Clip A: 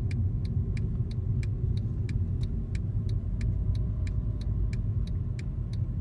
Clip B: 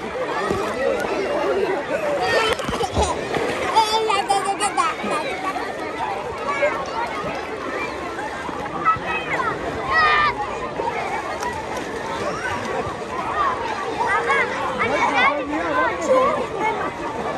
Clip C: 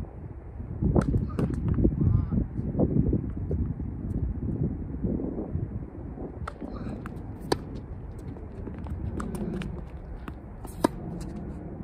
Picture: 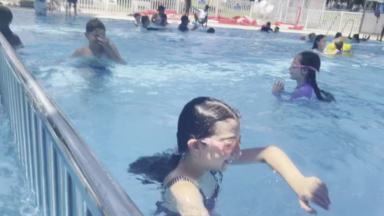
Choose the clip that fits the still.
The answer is B